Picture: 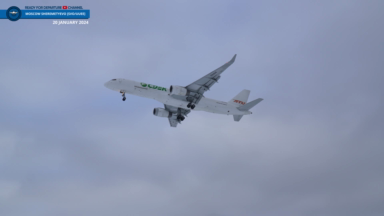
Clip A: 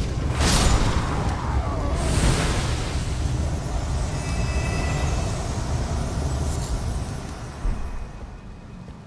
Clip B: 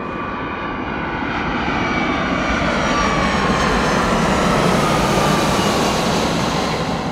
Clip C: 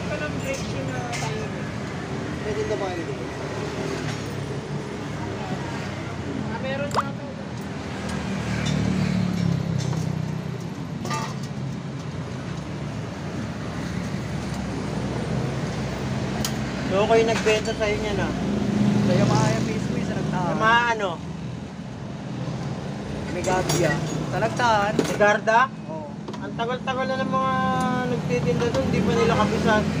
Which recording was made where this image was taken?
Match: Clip B